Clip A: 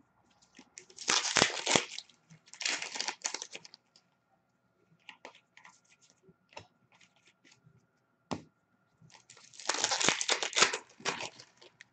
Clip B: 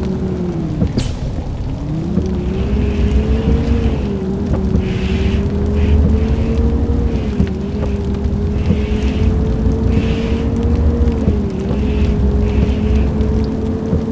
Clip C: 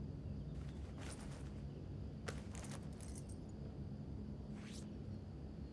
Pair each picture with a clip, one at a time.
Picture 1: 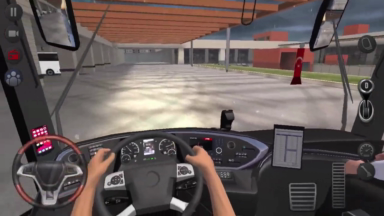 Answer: B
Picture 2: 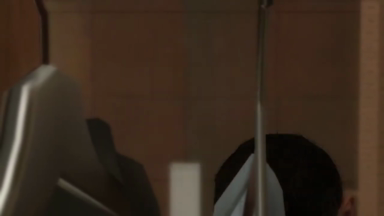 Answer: C